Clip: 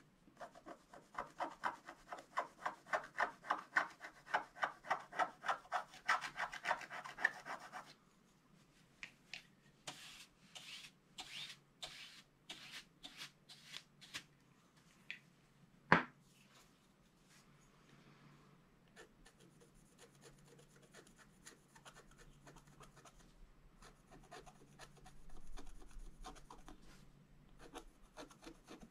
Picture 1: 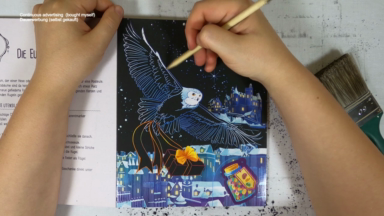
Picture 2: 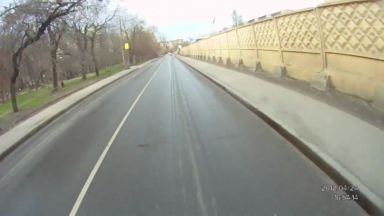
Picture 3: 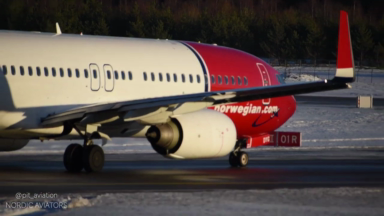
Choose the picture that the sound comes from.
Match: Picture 1